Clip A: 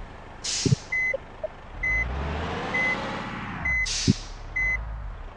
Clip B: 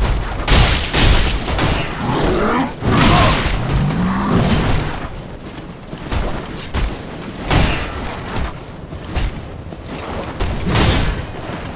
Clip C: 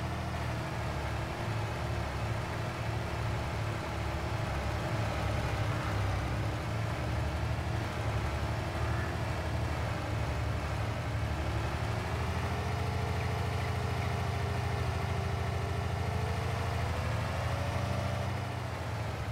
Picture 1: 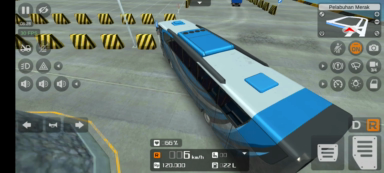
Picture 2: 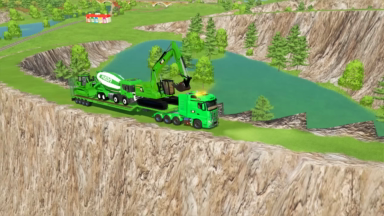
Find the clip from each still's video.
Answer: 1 A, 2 C